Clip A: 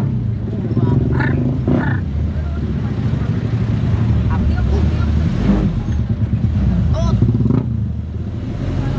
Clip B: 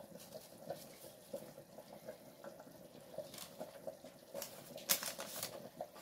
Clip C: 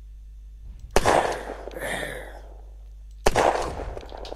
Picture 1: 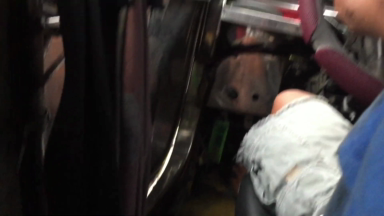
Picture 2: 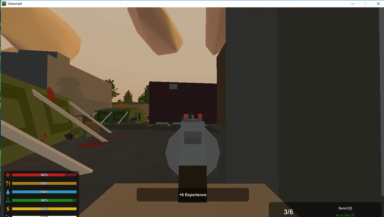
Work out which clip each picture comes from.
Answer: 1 A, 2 C